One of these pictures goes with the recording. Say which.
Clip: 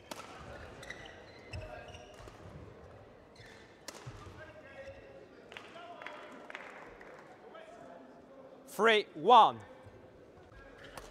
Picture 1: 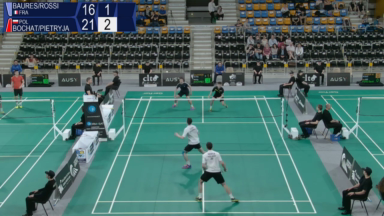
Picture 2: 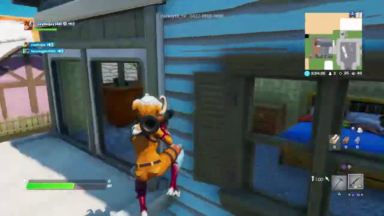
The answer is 1